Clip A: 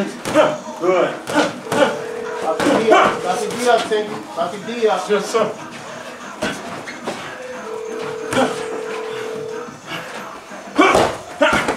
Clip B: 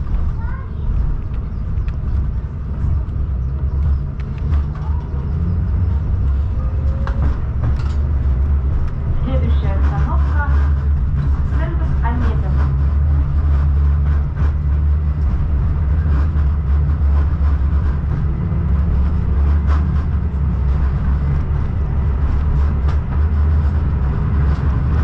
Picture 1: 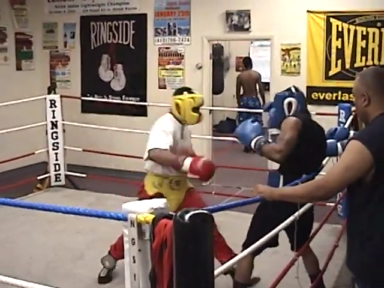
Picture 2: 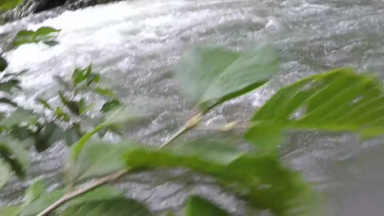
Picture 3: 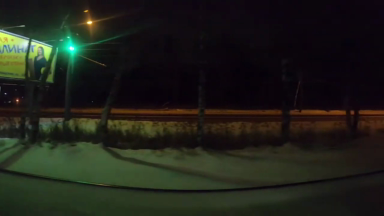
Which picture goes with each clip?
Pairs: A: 1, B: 3